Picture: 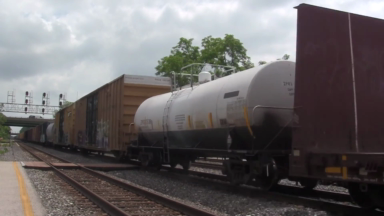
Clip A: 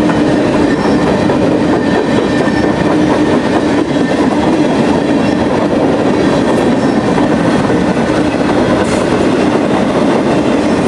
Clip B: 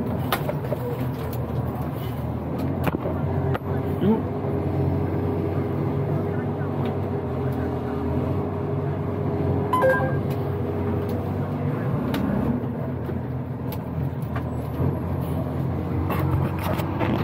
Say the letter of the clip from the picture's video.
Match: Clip A